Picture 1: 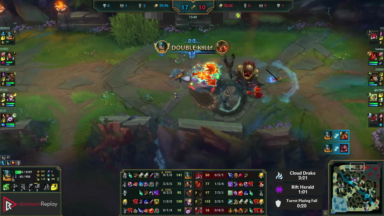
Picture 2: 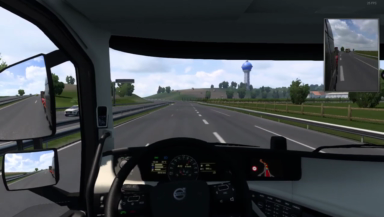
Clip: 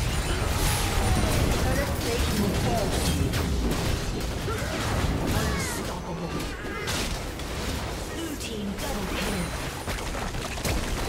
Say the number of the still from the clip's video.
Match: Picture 1